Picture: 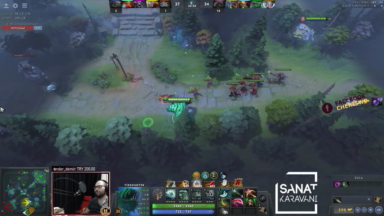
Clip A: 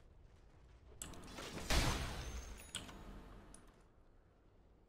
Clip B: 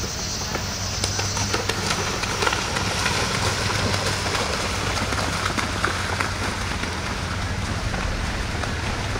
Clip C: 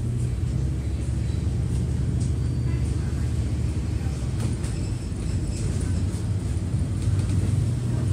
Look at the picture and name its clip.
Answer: A